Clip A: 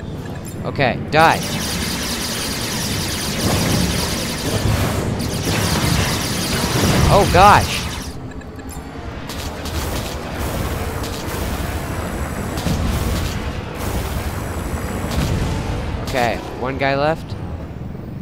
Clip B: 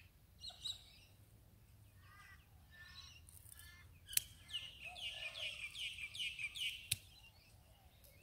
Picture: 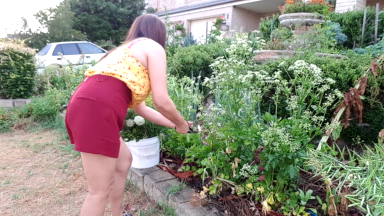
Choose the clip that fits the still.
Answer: B